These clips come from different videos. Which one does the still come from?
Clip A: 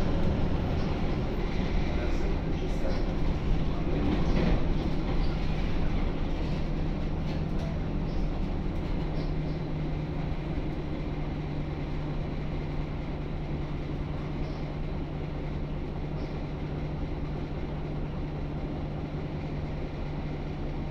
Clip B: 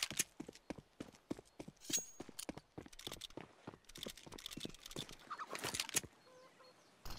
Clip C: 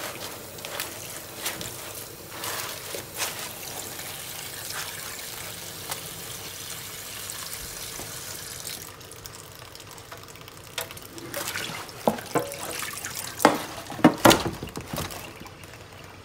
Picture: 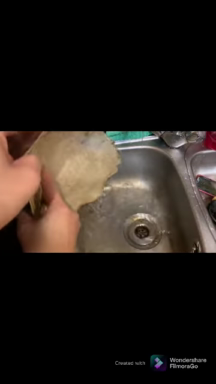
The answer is C